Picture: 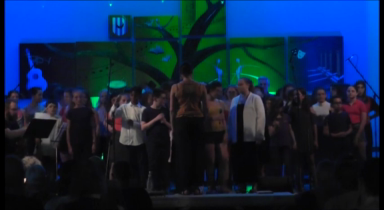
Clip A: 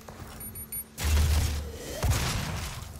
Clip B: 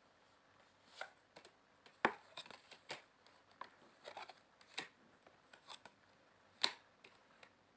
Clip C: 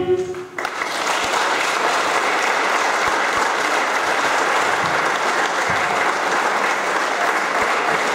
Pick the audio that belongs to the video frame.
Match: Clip C